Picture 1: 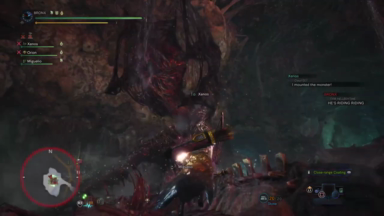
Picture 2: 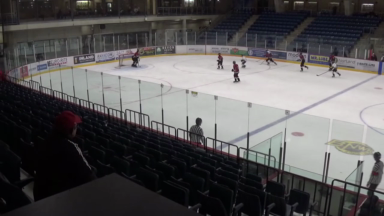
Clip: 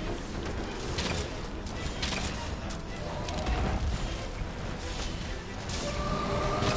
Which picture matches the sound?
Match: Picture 1